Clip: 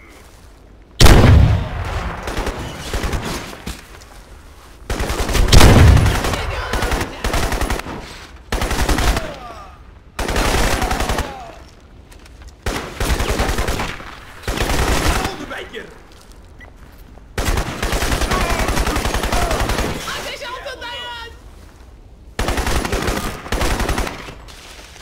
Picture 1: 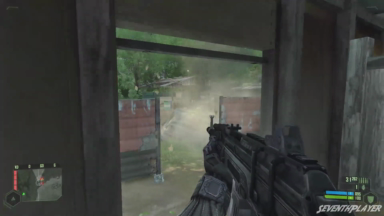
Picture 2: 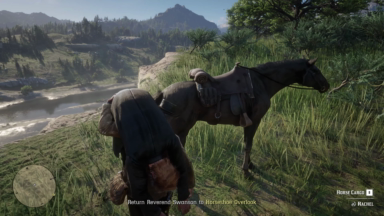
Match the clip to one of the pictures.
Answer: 1